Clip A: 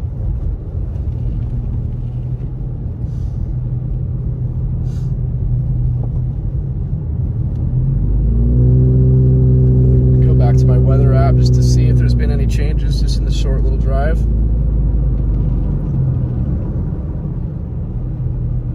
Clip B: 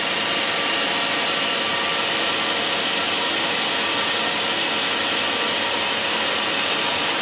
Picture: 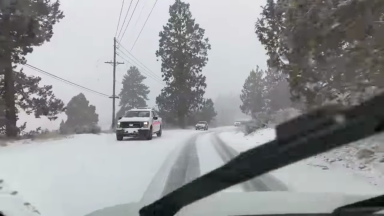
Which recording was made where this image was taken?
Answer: A